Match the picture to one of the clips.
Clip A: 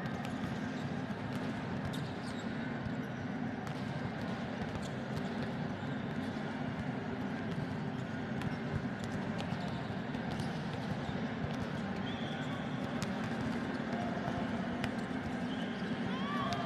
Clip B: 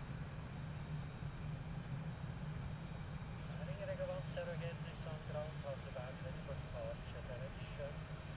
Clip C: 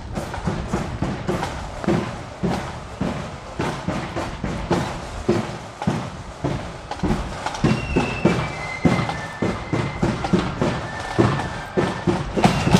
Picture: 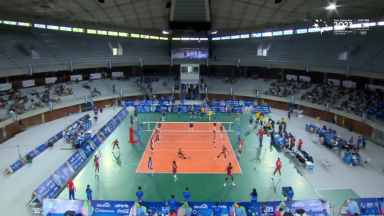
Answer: A